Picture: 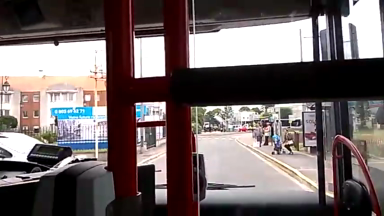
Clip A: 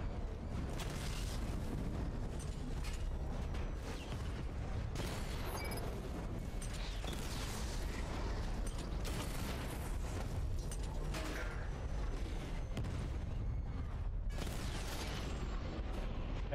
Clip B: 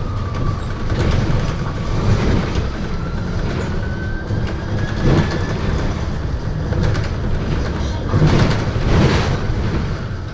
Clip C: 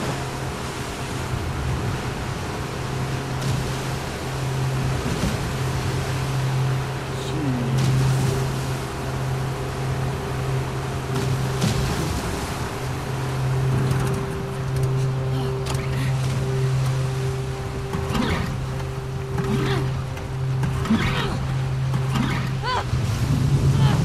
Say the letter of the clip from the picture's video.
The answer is B